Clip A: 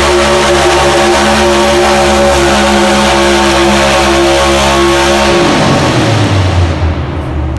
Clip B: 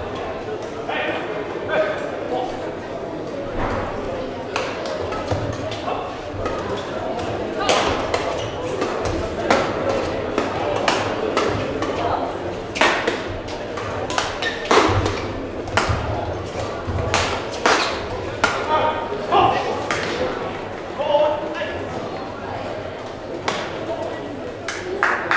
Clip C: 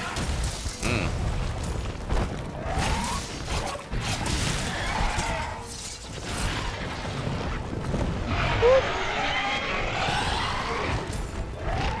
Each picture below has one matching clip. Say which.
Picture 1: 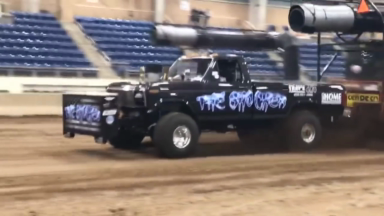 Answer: A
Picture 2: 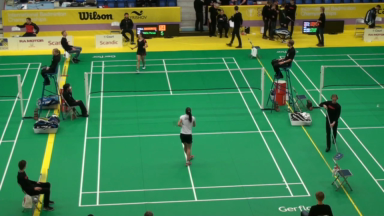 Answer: B